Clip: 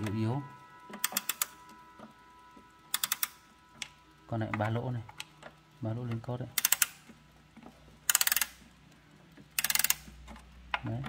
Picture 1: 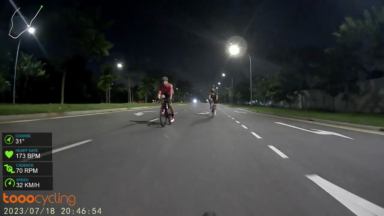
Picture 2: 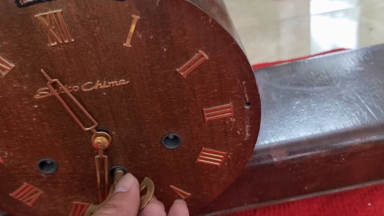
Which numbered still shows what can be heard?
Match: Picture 2